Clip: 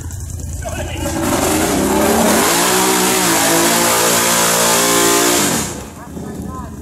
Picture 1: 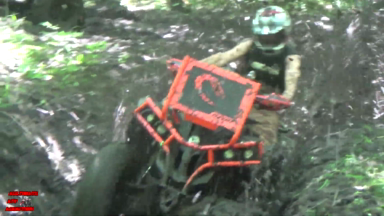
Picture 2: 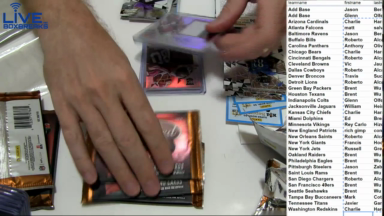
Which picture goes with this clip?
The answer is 1